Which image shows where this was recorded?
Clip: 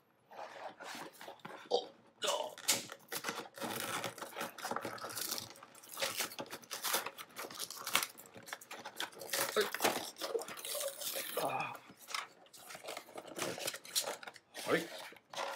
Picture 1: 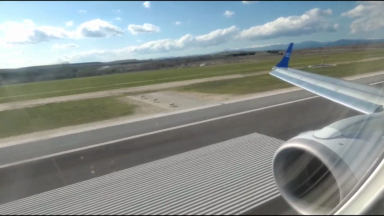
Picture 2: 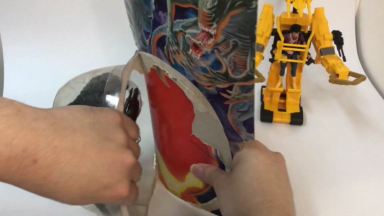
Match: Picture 2